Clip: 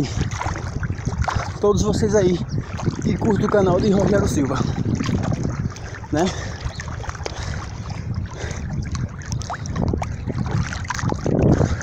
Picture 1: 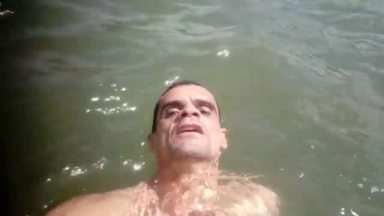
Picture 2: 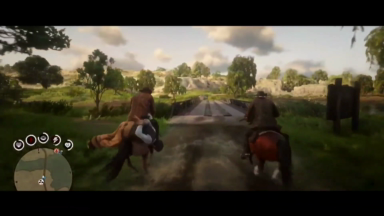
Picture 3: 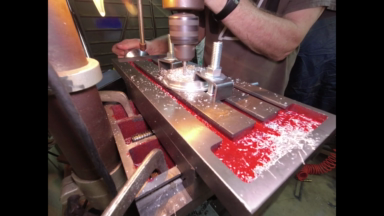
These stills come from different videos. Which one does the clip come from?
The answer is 1